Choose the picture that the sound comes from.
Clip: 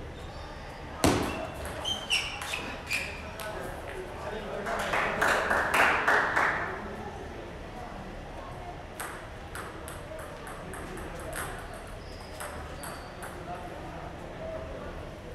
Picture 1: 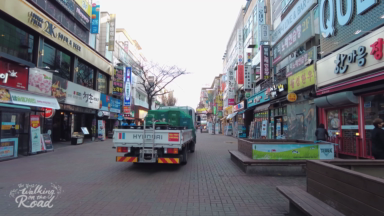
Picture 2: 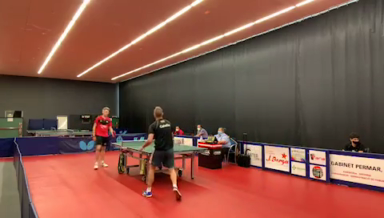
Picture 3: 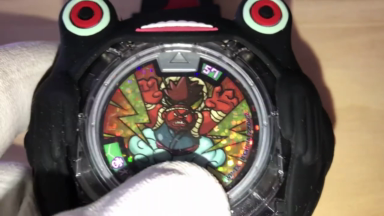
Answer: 2